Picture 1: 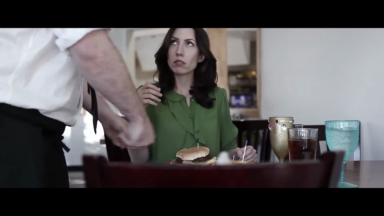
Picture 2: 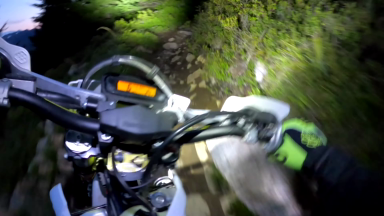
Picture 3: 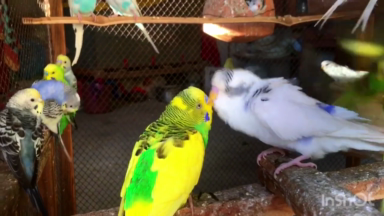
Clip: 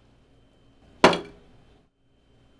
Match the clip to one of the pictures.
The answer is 1